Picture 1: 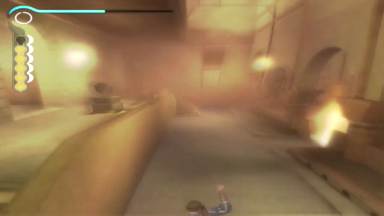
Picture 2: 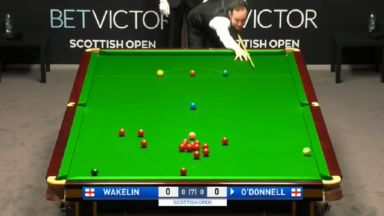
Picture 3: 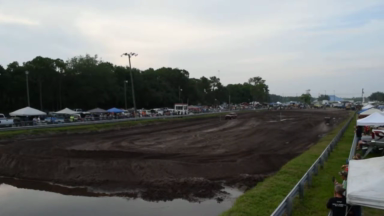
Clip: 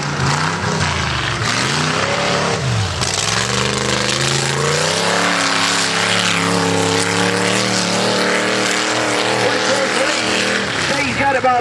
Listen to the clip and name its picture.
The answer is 3